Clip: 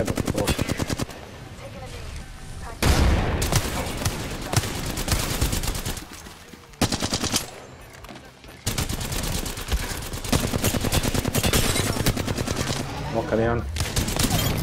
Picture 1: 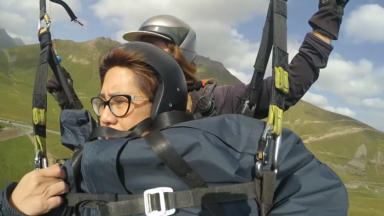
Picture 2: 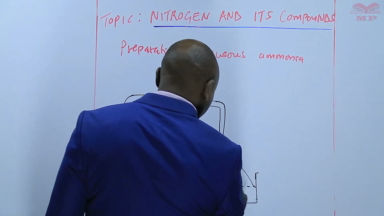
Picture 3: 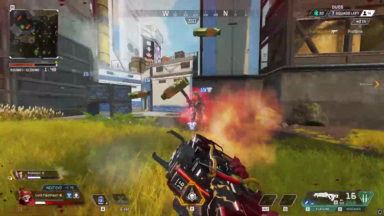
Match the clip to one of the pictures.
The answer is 3